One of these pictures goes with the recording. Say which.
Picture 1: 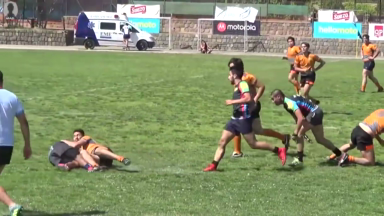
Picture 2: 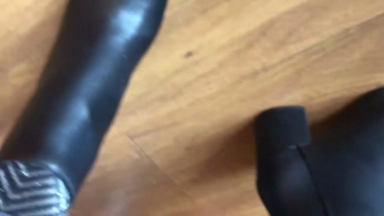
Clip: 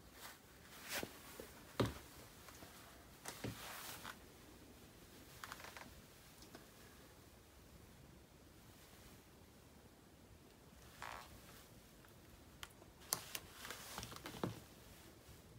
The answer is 2